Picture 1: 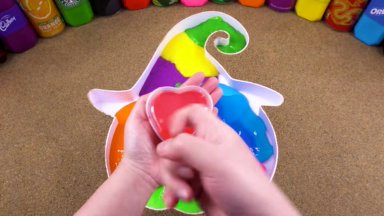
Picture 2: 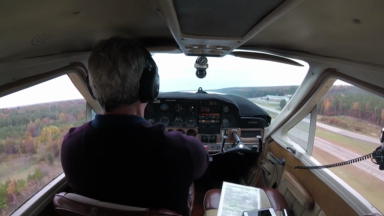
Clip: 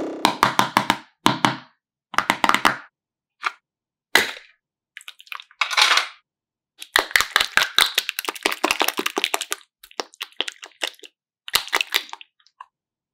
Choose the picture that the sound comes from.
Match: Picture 1